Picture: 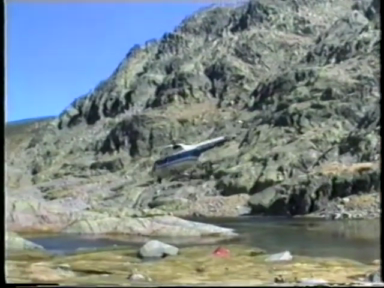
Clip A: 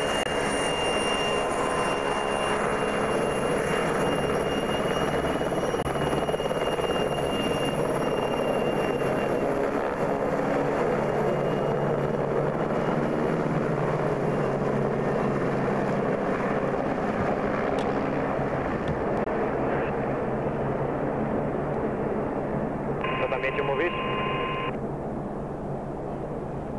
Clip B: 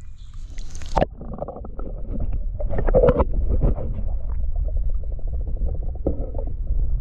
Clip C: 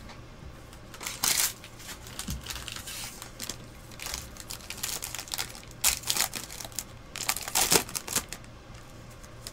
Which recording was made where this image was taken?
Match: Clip A